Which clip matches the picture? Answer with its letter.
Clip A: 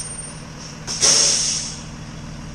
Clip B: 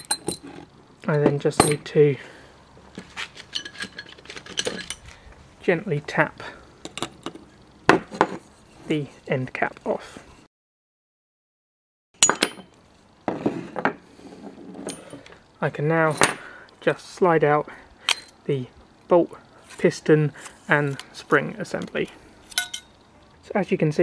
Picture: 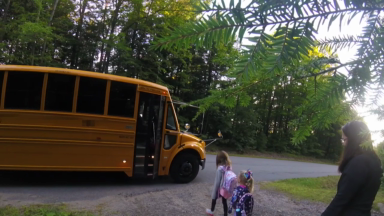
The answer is A